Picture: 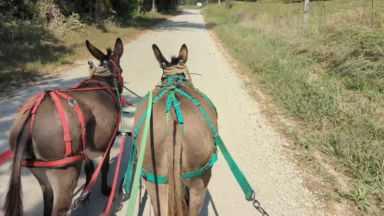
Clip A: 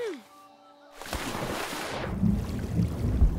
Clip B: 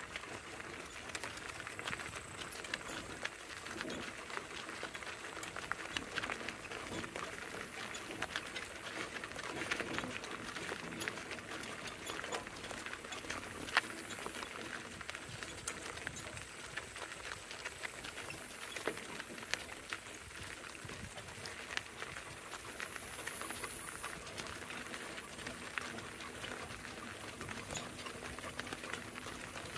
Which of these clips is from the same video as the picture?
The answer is B